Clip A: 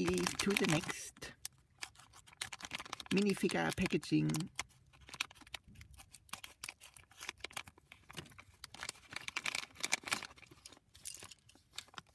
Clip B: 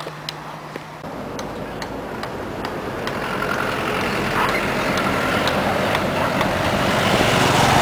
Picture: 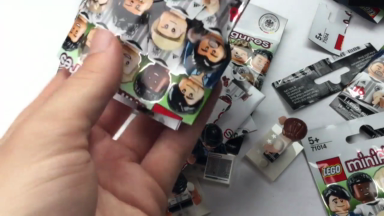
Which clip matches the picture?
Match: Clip A